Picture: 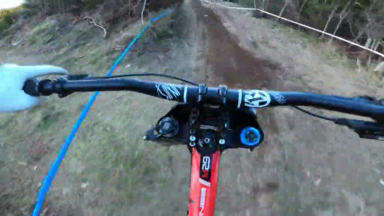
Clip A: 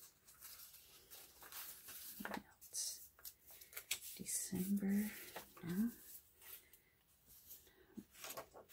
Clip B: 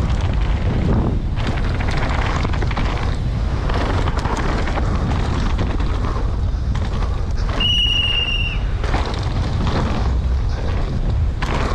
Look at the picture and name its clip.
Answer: B